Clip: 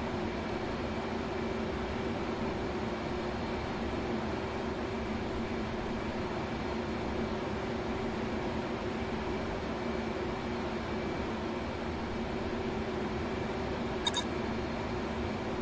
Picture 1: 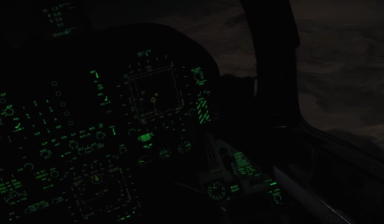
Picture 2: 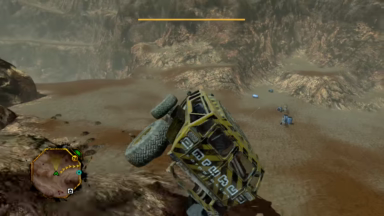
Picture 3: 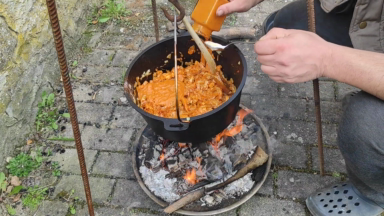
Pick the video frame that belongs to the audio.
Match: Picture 1